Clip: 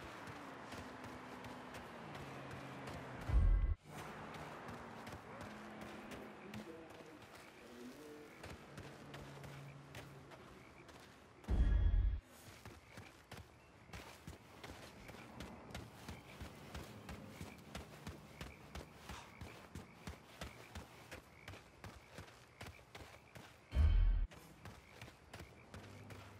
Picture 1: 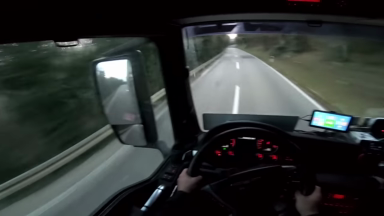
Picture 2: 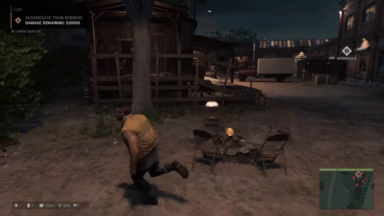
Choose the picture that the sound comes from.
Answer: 2